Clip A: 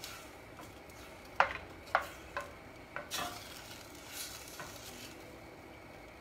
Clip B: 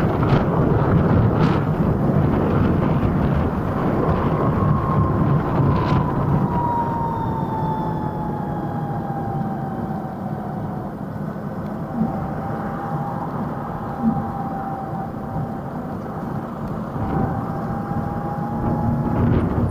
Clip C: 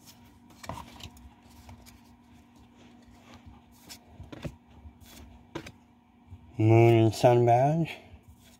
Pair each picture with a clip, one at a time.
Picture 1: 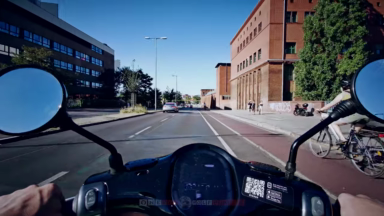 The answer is B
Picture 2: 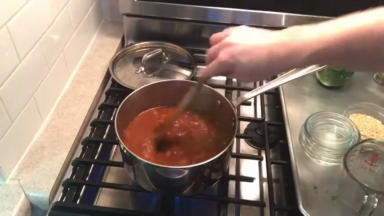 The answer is A